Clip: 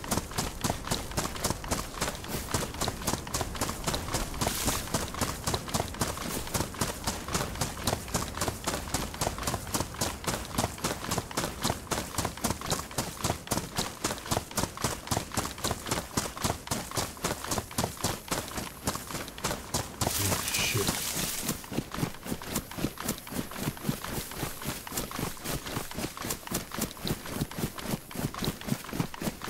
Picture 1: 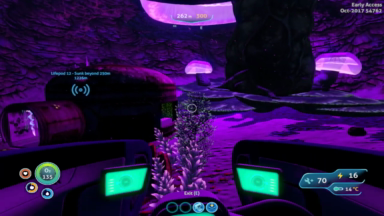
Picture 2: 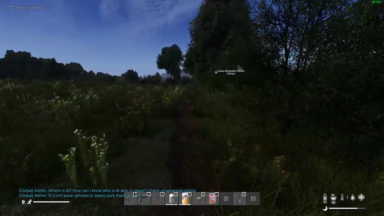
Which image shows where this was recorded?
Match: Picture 2